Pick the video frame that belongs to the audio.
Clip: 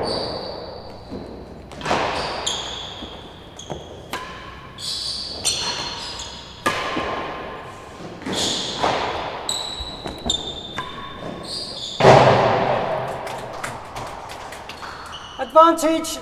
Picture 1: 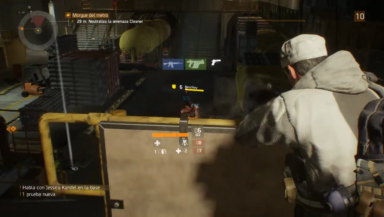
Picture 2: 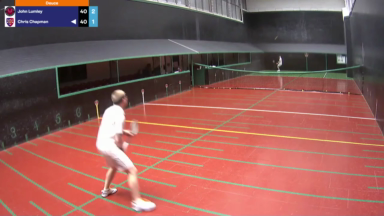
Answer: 2